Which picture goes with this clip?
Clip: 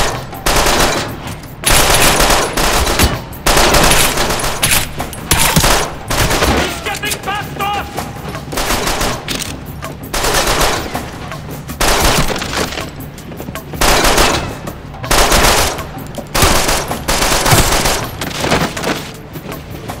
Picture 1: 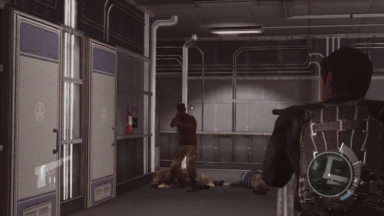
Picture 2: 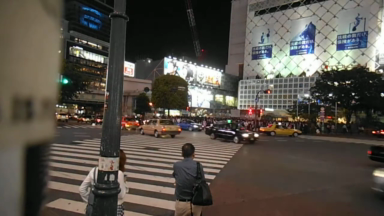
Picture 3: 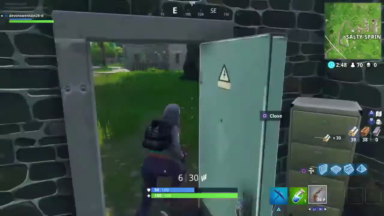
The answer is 1